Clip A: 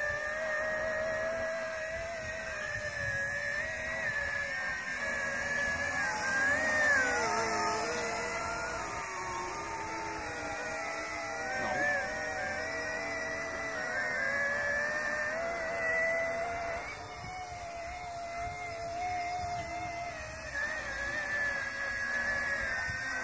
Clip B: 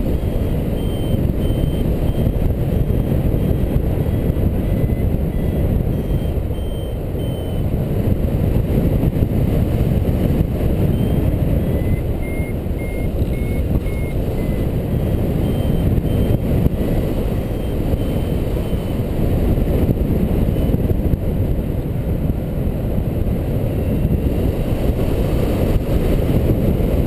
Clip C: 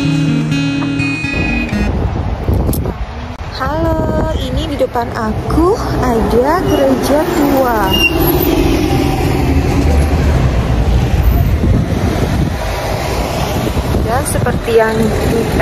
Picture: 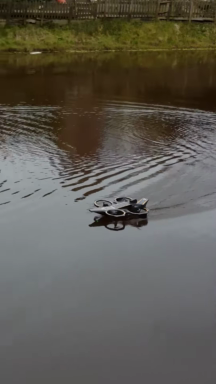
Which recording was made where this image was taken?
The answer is A